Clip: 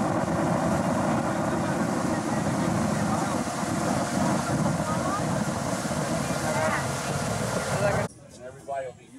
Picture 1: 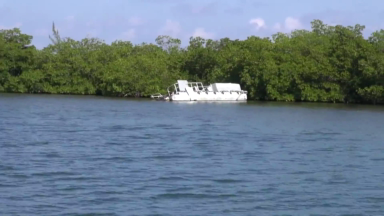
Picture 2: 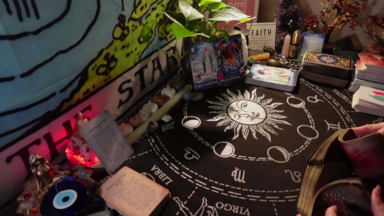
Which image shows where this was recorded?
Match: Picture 1